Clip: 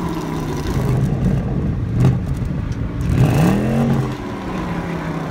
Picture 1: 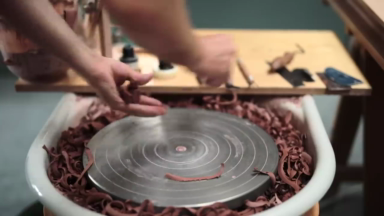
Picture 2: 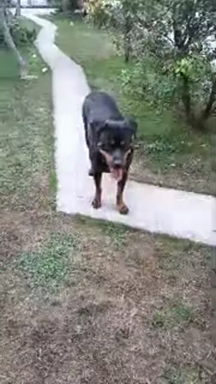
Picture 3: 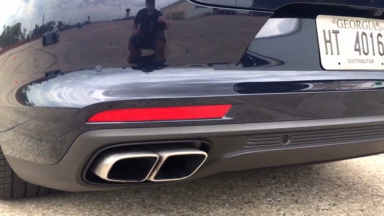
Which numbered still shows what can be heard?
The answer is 3